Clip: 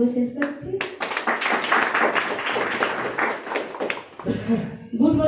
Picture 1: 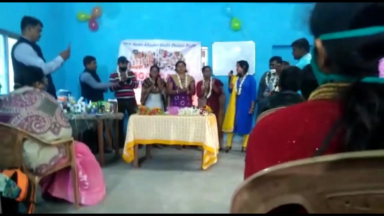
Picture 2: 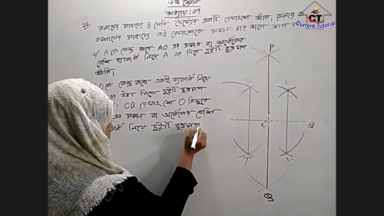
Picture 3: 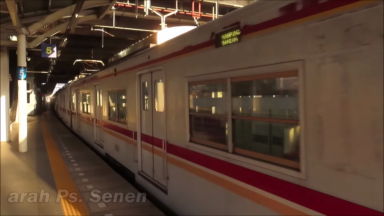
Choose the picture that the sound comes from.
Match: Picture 1